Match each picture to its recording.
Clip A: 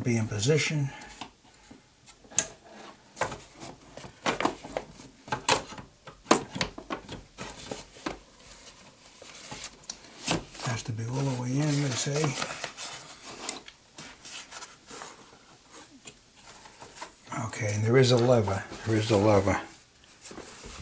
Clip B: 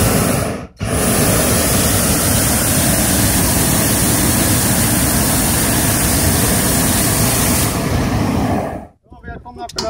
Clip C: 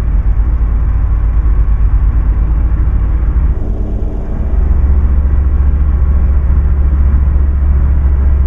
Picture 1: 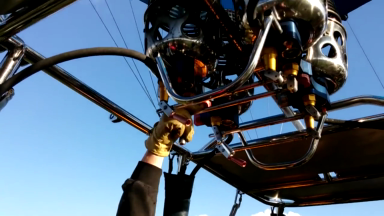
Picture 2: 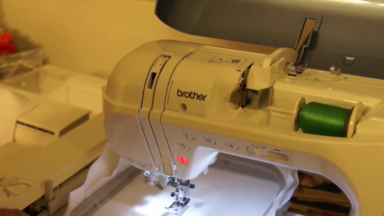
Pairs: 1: B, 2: A